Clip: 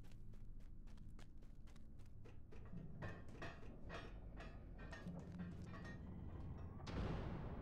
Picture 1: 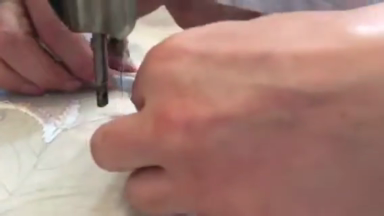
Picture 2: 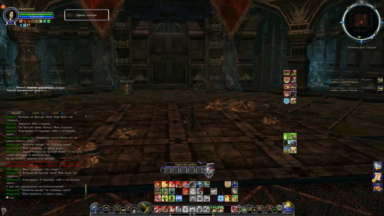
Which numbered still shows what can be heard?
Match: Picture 2